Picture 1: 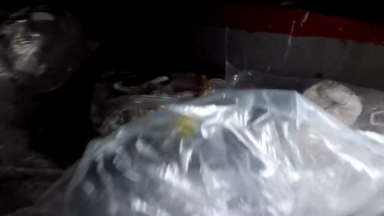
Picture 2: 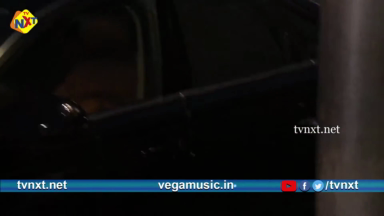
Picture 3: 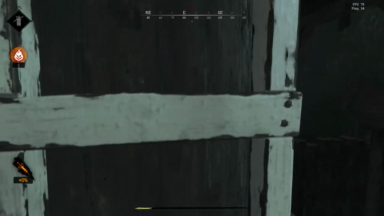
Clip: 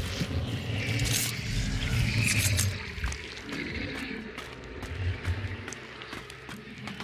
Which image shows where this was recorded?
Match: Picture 3